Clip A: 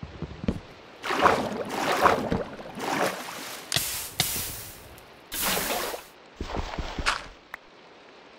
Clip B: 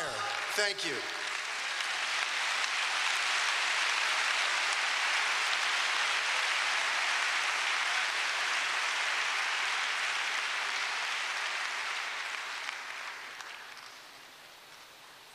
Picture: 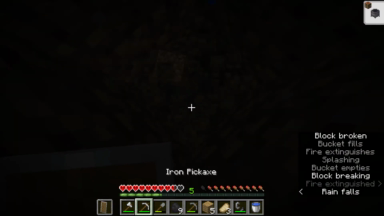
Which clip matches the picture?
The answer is A